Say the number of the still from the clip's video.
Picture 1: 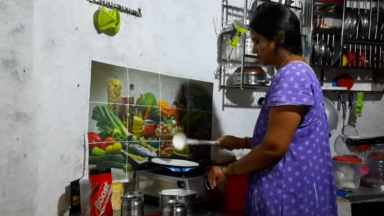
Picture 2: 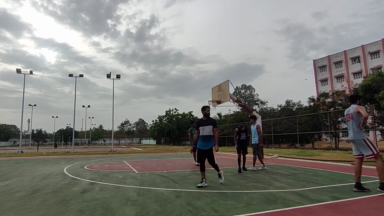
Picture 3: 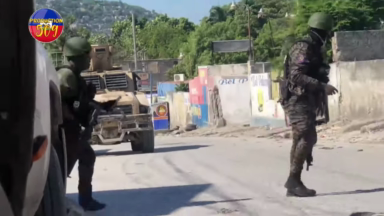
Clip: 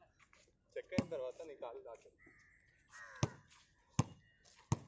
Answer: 2